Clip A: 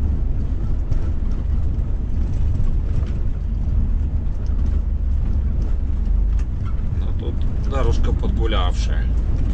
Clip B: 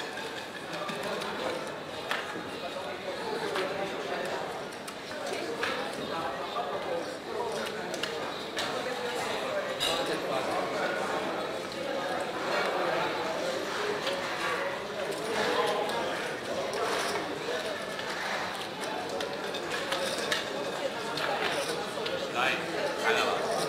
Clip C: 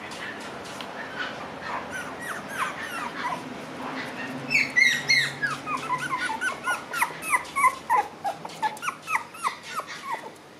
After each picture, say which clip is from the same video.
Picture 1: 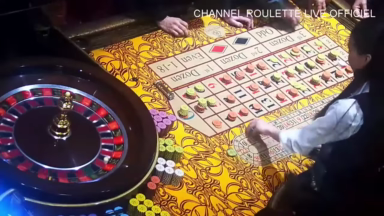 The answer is B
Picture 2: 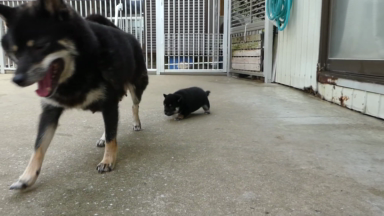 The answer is C